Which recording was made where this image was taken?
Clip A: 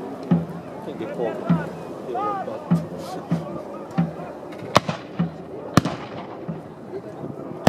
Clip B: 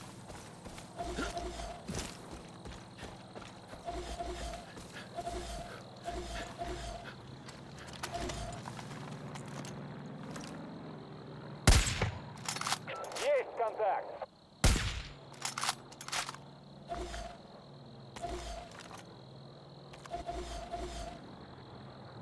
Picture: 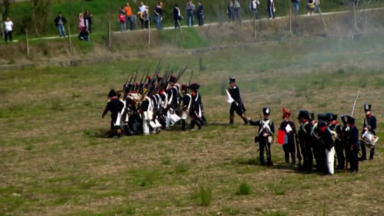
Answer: A